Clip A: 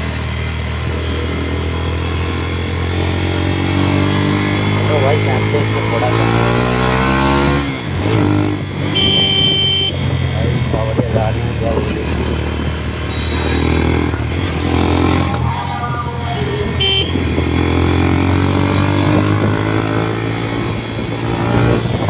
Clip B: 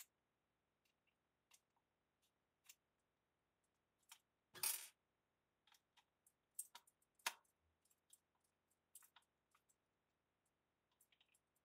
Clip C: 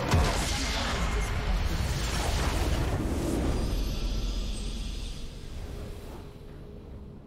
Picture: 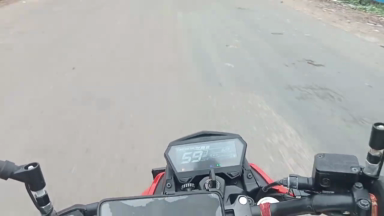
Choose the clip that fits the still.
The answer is A